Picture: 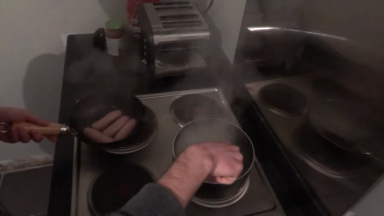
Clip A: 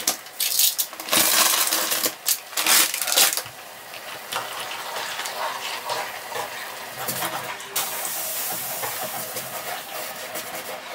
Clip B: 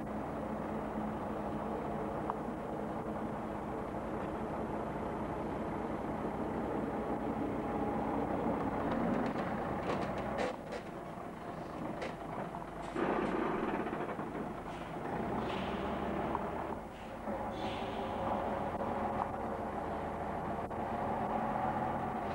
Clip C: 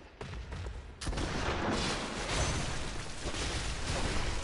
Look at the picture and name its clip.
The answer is A